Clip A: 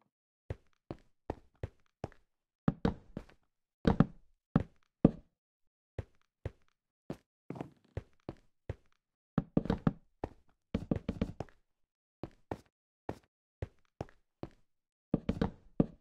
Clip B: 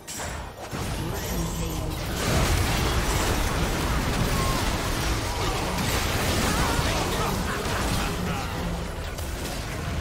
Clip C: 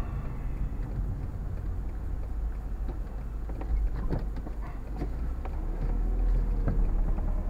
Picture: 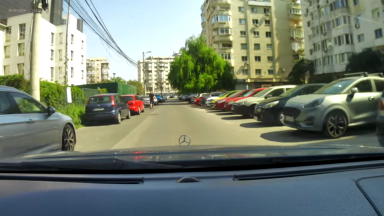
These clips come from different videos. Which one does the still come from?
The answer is C